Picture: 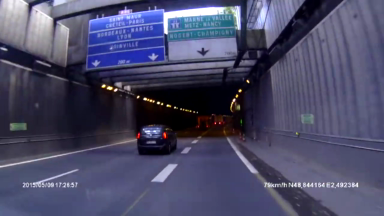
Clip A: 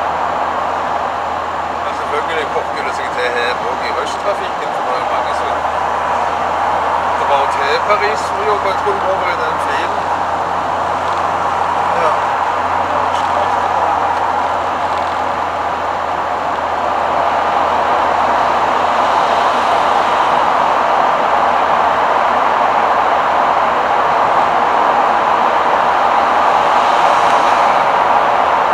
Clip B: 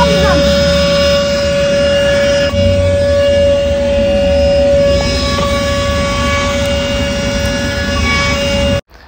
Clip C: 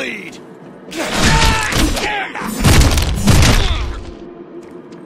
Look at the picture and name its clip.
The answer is A